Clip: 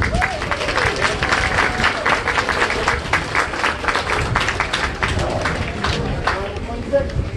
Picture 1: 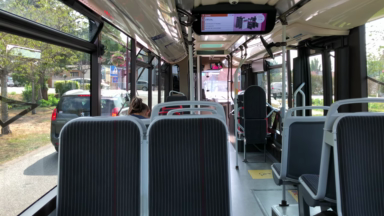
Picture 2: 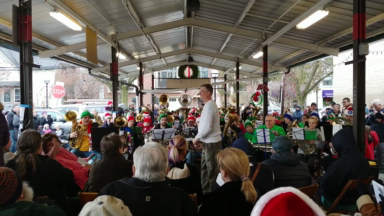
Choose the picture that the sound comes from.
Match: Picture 2